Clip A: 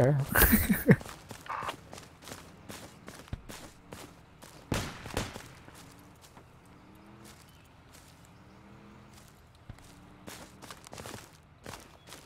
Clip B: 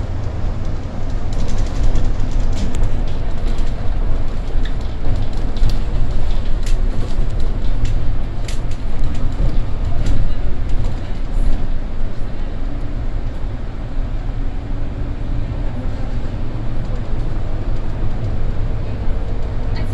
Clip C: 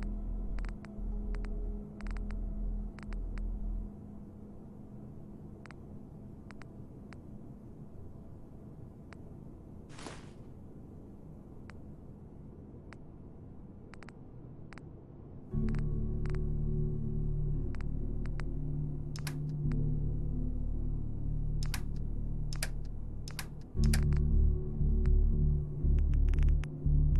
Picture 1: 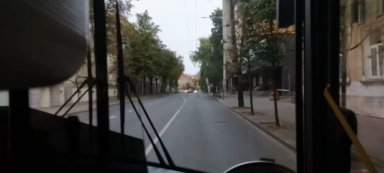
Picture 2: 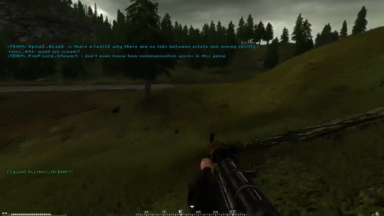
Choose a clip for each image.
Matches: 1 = B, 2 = A